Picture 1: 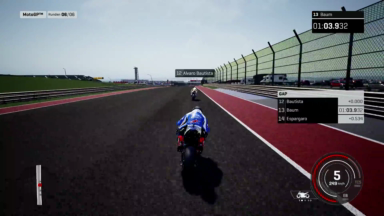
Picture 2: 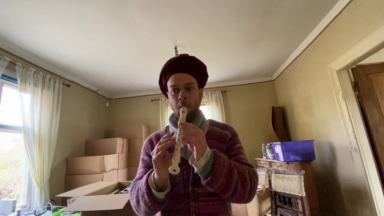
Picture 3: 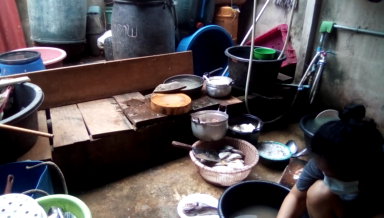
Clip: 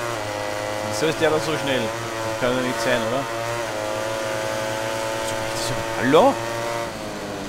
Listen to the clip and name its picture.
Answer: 1